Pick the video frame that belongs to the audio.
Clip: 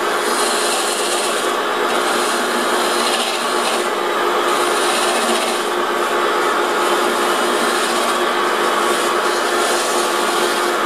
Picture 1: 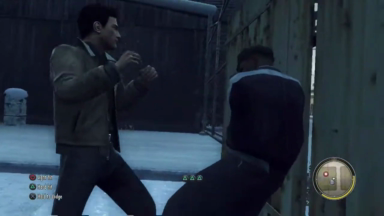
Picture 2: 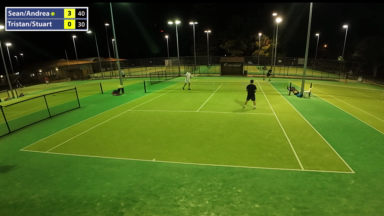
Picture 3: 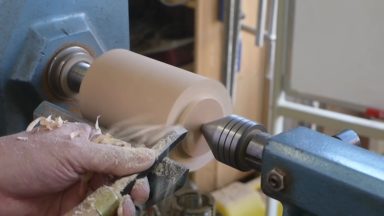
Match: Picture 3